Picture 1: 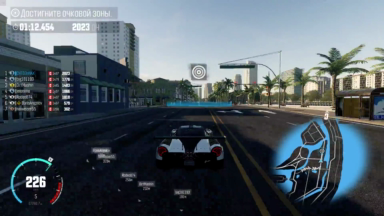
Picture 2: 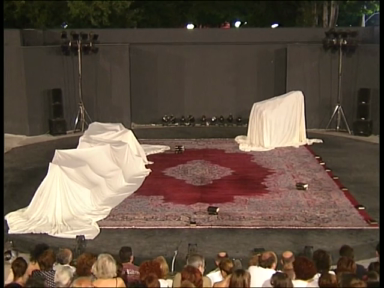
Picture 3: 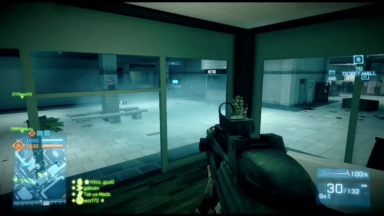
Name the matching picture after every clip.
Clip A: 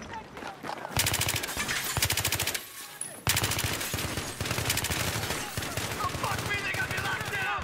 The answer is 3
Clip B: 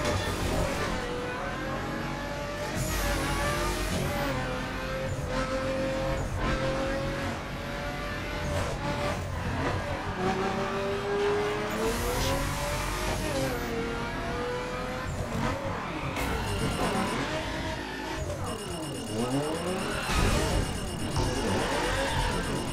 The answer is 1